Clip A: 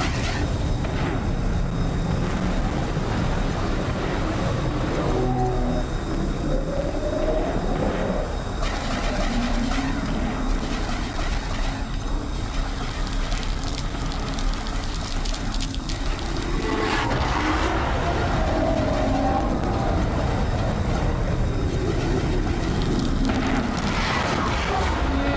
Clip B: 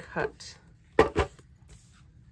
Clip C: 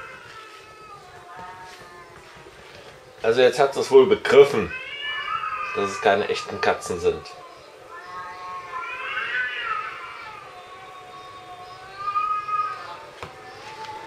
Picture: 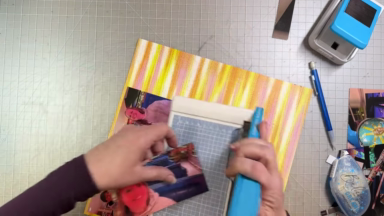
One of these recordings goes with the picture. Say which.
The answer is B